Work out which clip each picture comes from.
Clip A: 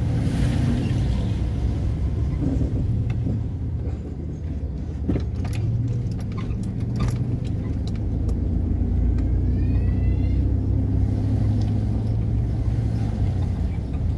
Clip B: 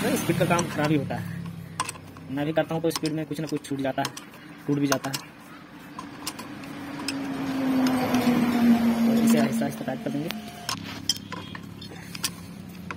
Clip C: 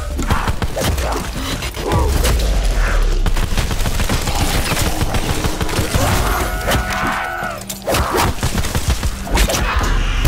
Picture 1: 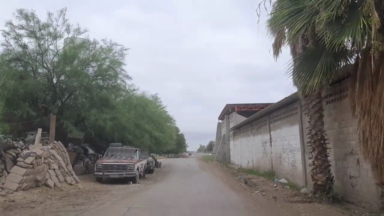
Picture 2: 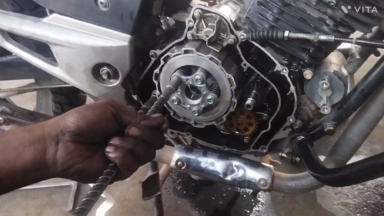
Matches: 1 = A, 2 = B